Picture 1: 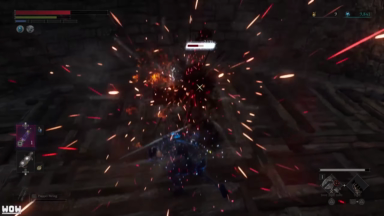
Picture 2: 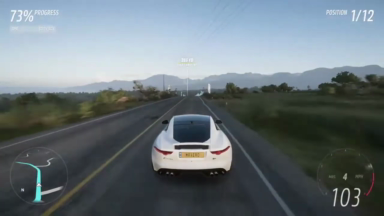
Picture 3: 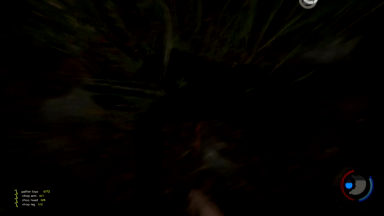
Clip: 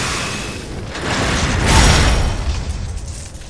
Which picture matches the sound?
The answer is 1